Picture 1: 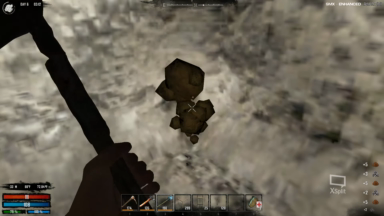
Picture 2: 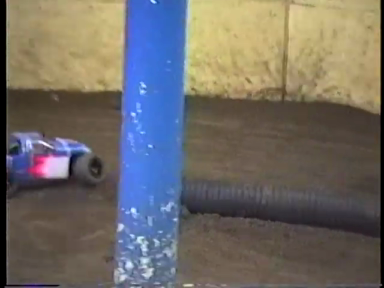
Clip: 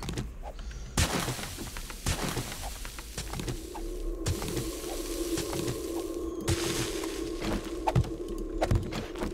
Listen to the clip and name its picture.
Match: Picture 1